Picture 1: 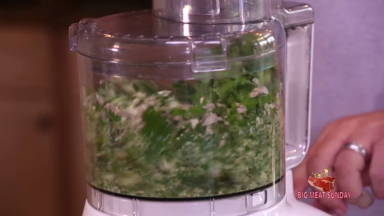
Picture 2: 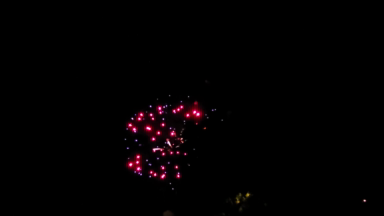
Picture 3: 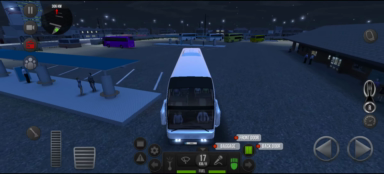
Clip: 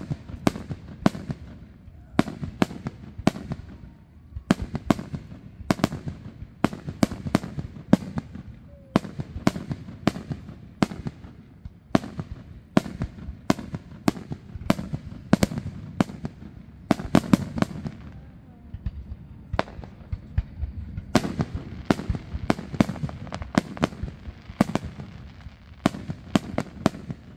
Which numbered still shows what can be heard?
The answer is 2